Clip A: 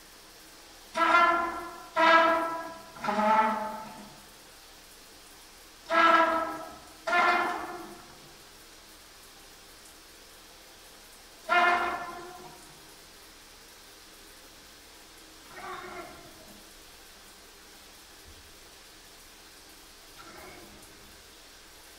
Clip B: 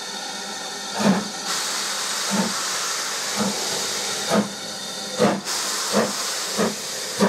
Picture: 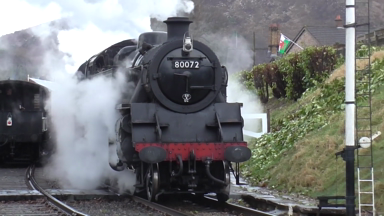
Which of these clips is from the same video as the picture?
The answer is B